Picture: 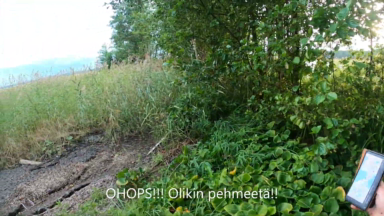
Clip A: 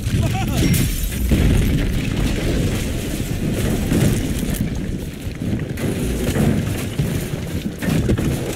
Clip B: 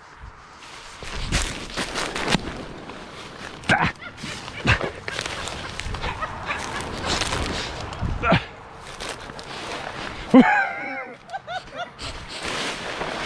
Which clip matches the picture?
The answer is B